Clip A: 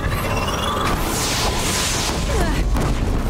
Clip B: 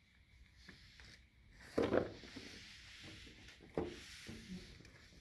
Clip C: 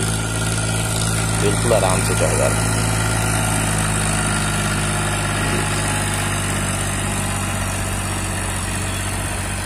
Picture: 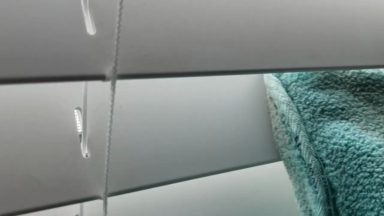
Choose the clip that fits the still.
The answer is B